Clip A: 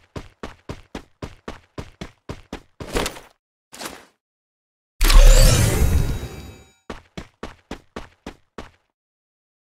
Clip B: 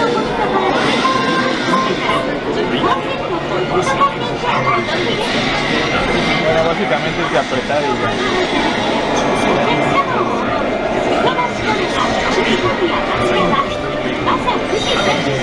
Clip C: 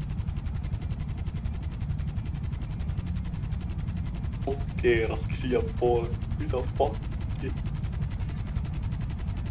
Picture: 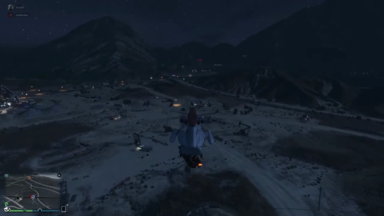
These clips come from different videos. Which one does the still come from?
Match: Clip C